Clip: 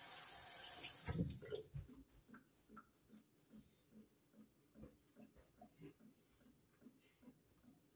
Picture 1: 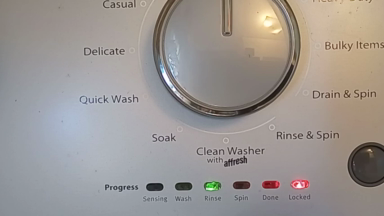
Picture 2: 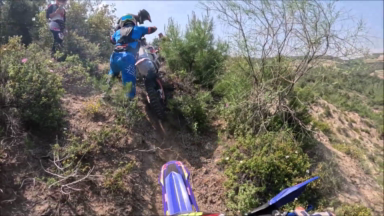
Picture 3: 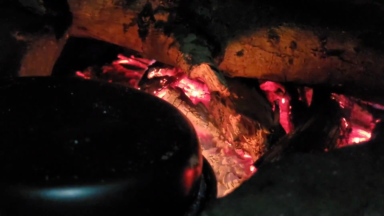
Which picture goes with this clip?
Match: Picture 1